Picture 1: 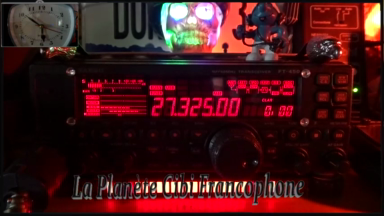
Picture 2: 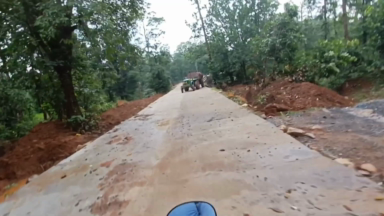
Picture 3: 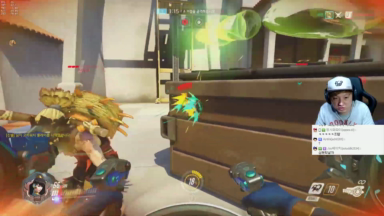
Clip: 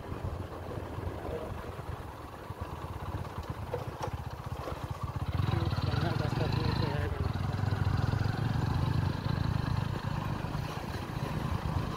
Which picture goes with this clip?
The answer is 2